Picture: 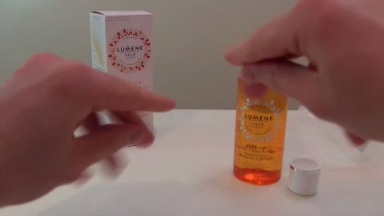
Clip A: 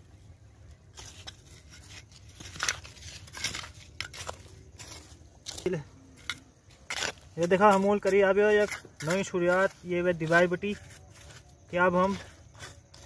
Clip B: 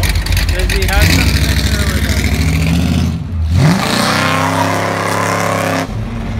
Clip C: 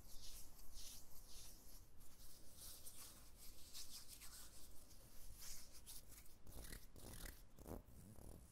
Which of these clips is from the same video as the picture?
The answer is C